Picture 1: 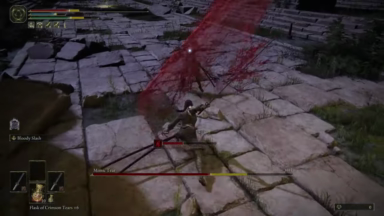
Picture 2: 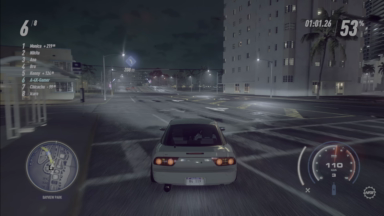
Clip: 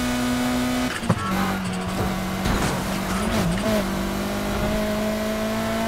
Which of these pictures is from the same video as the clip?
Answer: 2